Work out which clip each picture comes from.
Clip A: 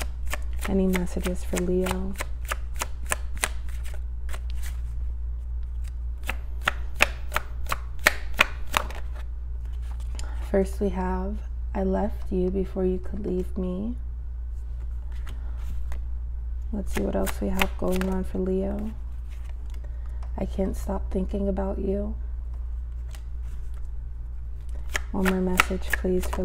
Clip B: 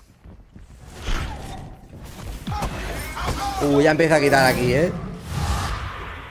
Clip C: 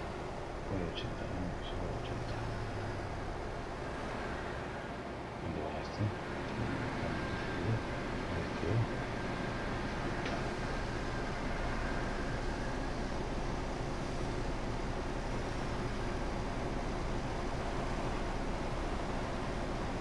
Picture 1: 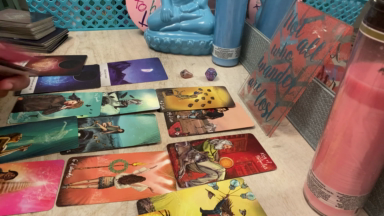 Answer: A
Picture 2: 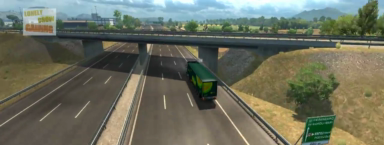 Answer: C